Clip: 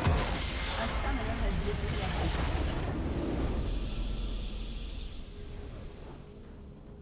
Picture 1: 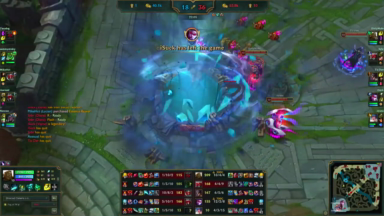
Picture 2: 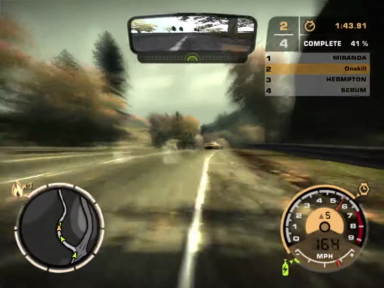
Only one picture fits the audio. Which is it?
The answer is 1